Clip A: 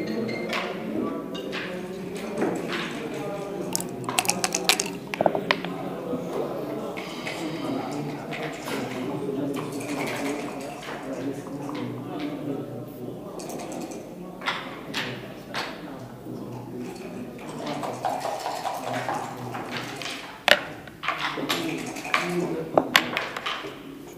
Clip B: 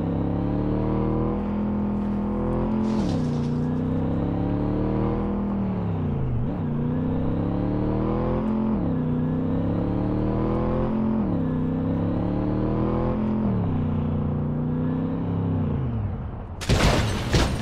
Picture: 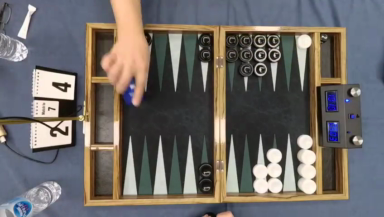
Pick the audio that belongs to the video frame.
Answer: A